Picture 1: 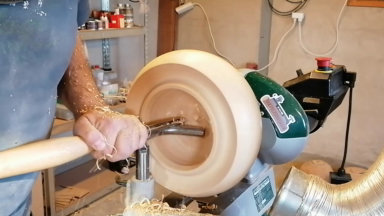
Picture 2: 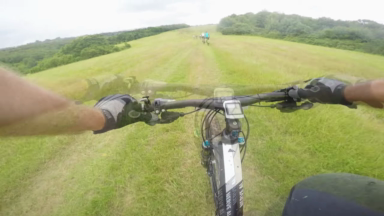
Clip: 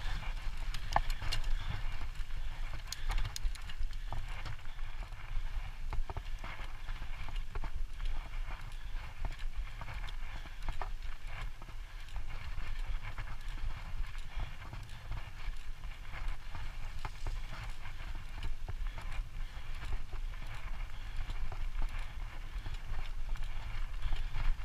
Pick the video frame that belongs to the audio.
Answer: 2